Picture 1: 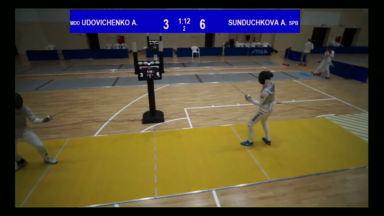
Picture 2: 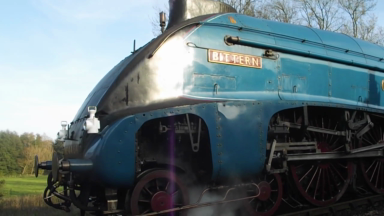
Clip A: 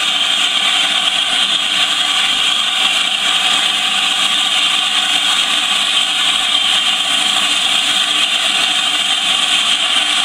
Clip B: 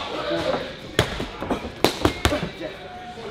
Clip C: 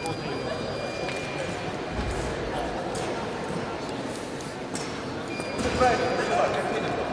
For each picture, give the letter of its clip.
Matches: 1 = C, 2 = A